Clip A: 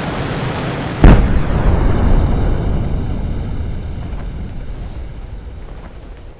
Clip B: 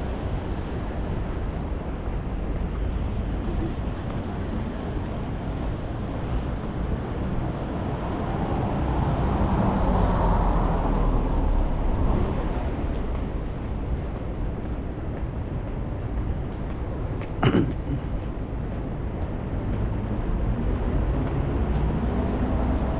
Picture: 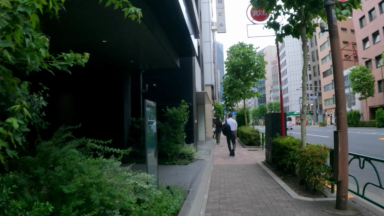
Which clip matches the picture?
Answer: B